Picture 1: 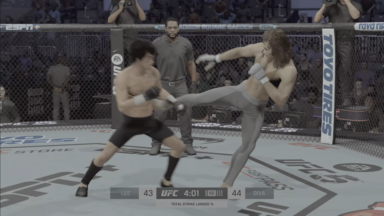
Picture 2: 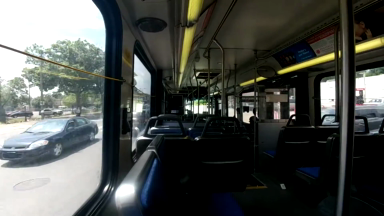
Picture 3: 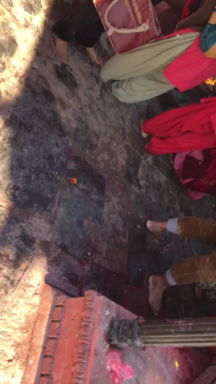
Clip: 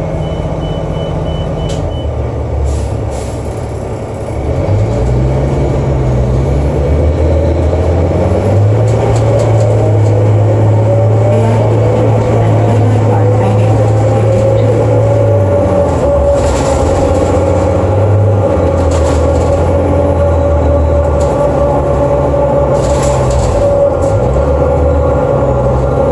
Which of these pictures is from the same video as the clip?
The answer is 2